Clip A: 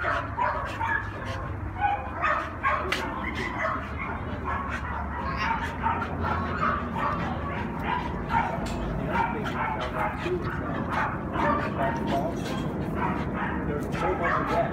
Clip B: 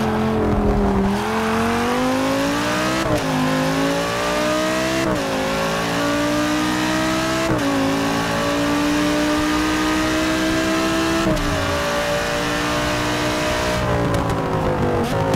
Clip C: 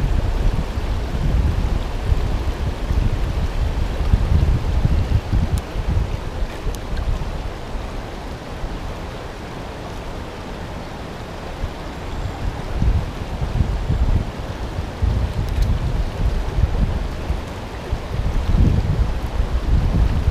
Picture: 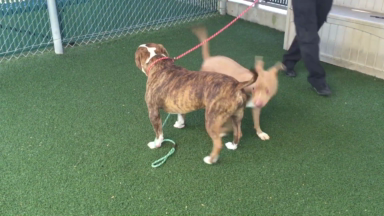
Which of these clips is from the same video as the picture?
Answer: A